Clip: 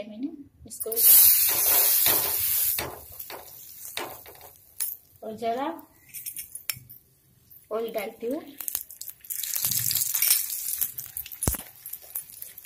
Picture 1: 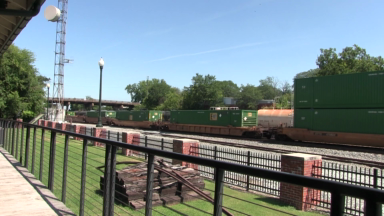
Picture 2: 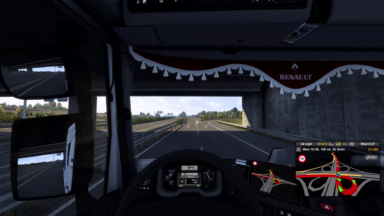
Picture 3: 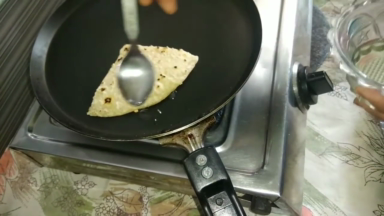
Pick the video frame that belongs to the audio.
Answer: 3